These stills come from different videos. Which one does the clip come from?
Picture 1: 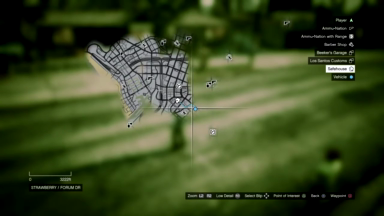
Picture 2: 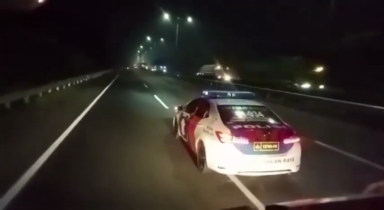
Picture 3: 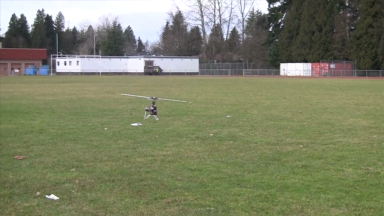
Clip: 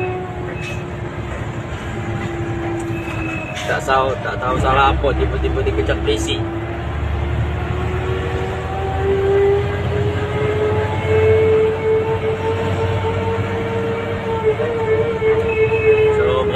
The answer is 2